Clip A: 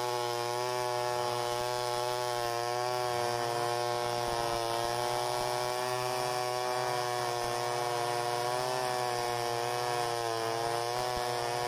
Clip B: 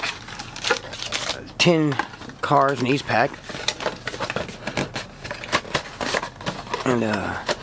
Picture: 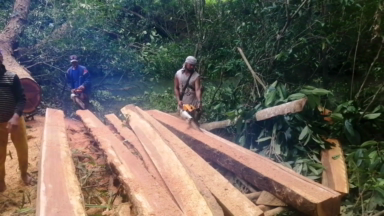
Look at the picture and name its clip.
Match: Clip A